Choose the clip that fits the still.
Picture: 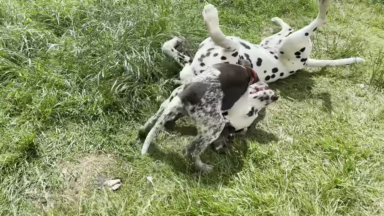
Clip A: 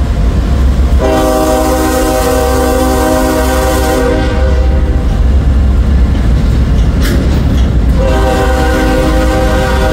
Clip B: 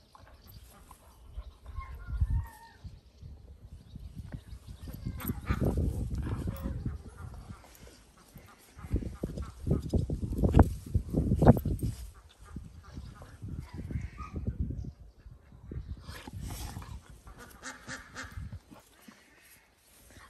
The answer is B